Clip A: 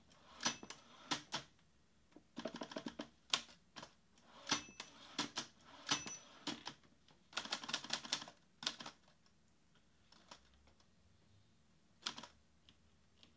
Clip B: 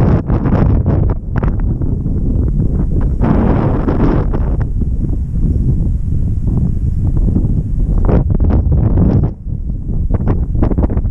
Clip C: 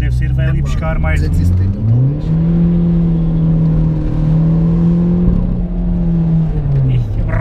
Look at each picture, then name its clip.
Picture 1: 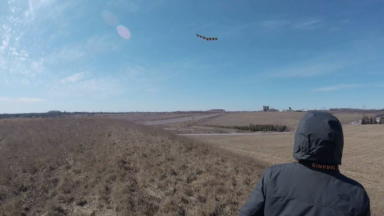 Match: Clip B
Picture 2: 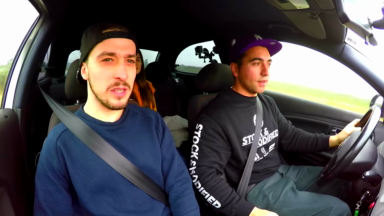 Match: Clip C